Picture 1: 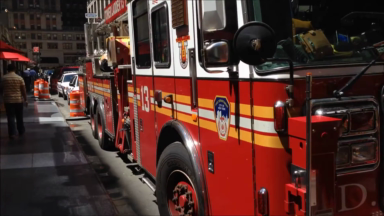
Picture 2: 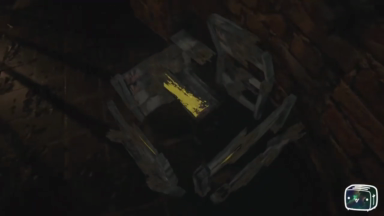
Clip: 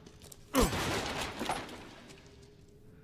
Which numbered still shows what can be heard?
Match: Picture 2